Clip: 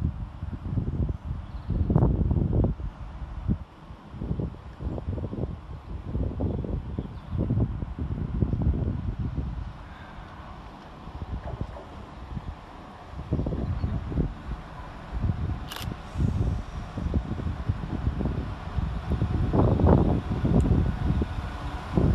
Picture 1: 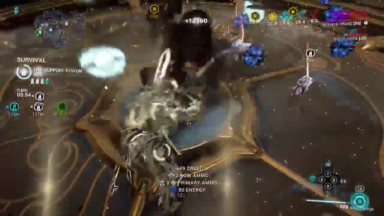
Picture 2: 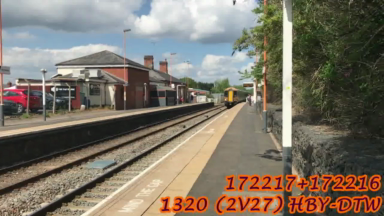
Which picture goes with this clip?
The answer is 2